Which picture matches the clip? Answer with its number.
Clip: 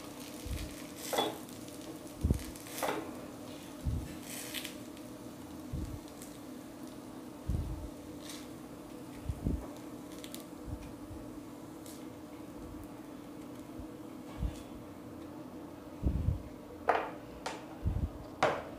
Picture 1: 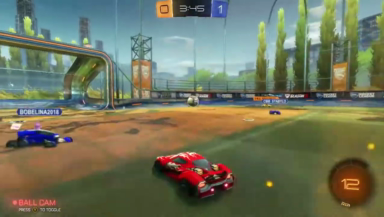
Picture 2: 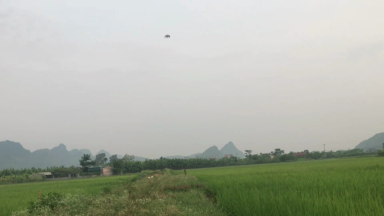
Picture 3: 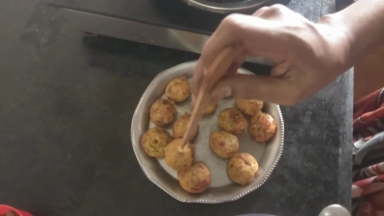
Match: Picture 3